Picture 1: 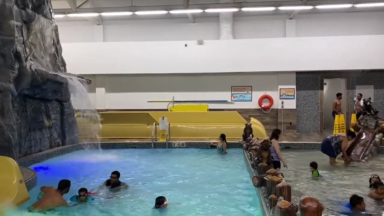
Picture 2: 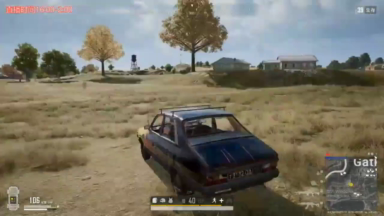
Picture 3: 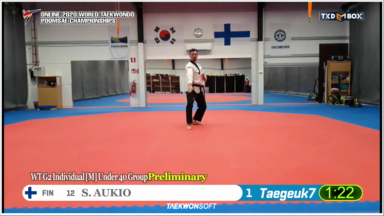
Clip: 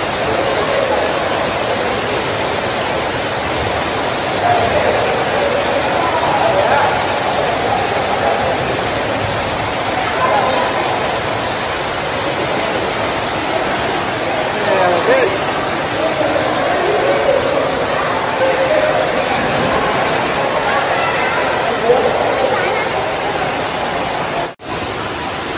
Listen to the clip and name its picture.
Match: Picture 1